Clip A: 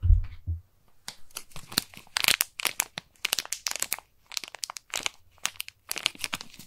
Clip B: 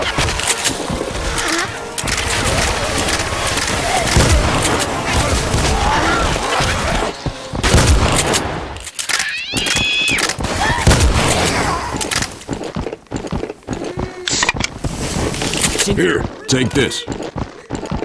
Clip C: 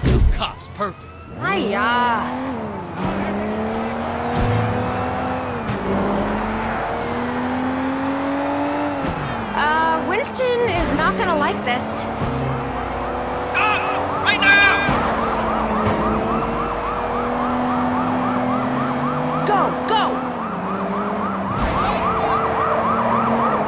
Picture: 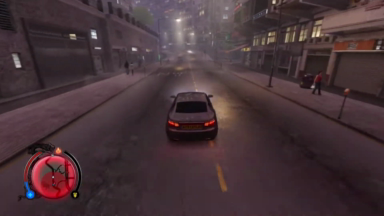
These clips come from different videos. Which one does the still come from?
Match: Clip C